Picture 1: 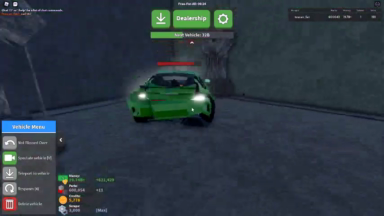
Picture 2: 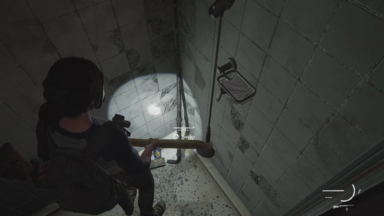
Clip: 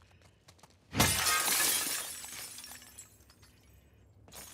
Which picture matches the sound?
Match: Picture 2